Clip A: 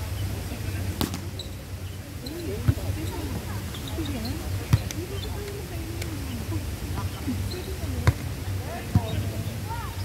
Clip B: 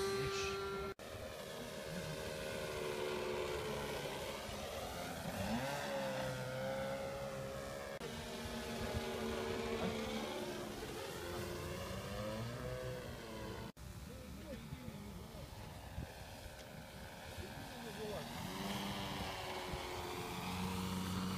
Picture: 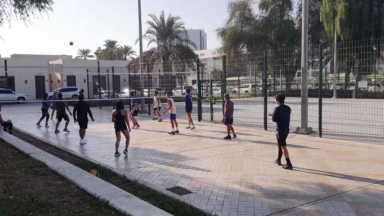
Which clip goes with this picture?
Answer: A